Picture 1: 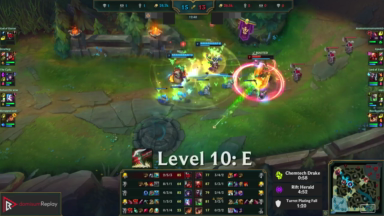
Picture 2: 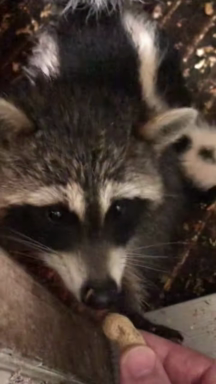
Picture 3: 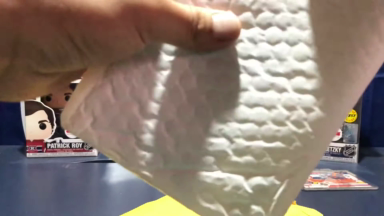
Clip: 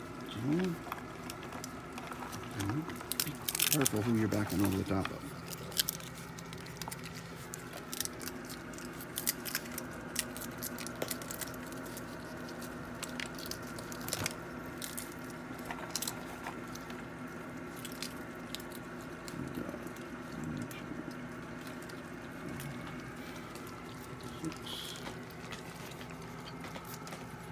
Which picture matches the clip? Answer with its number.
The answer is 2